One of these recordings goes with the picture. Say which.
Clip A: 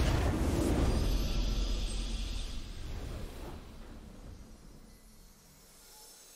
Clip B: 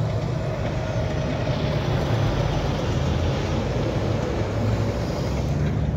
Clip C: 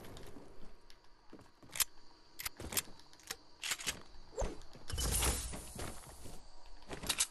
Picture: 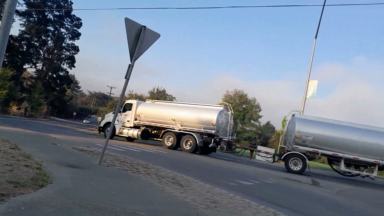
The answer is B